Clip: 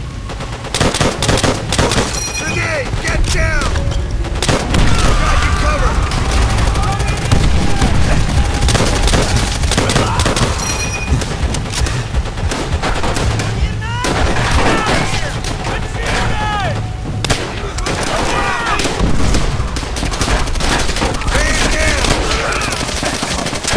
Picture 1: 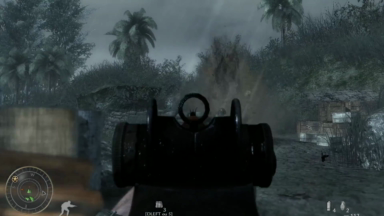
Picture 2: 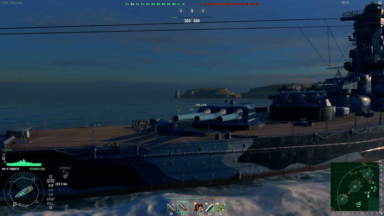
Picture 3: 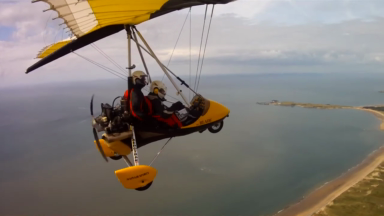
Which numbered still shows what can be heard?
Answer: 1